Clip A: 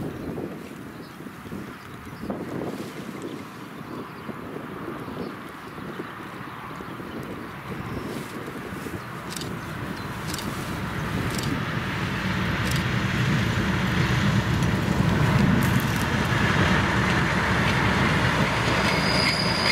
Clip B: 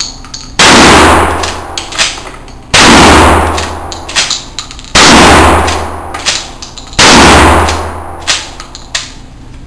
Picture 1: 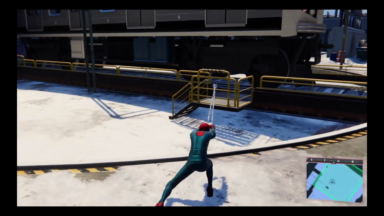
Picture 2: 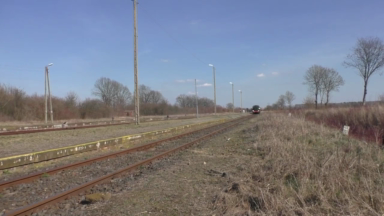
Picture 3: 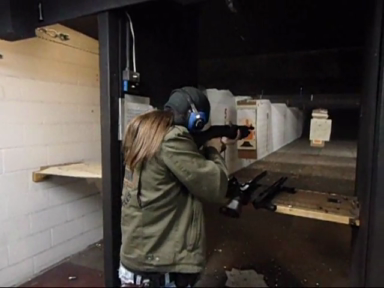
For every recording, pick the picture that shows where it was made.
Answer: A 2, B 3